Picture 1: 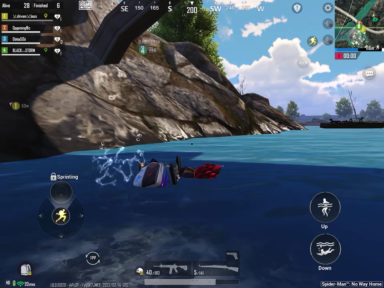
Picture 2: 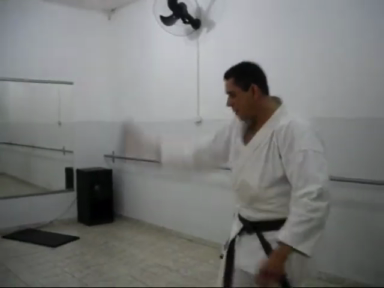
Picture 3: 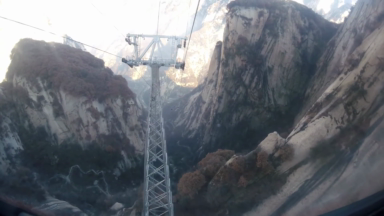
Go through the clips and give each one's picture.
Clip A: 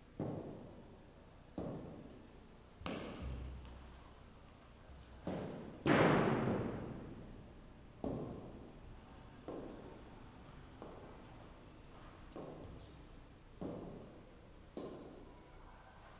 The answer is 2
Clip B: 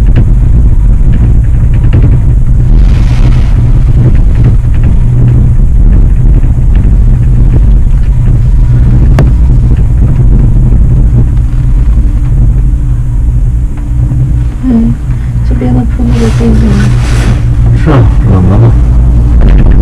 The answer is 3